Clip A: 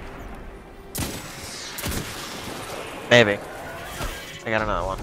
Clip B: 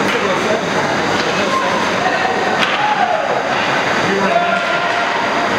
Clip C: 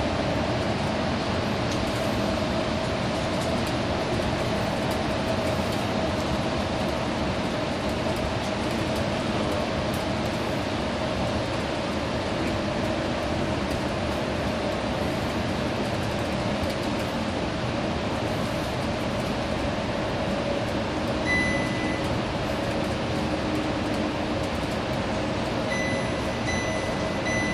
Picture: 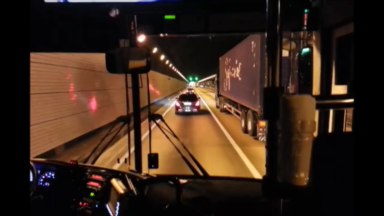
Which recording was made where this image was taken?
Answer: C